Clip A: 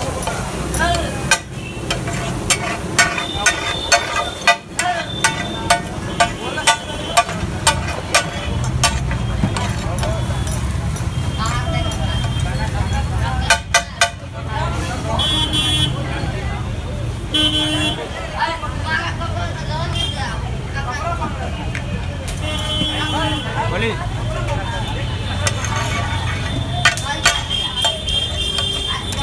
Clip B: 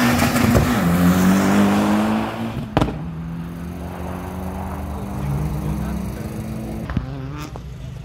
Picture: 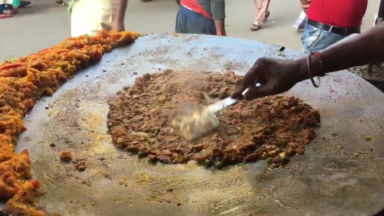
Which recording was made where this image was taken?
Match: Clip A